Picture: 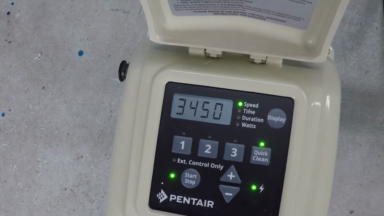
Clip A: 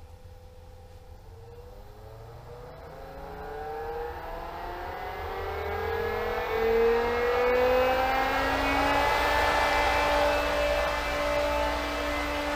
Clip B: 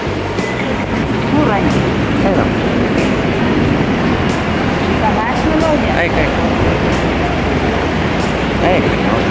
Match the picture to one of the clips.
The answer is A